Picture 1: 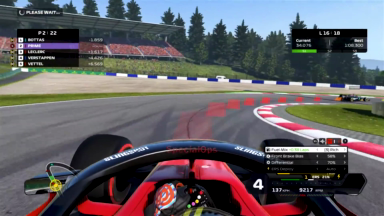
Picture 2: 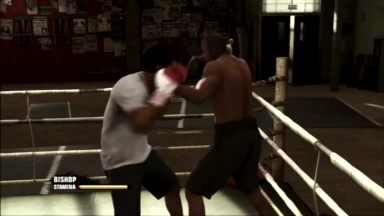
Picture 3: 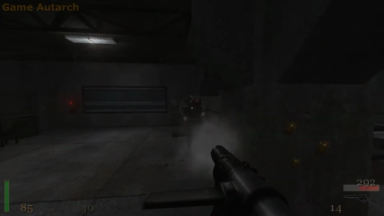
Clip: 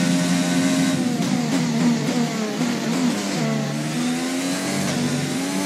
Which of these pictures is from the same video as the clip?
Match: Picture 1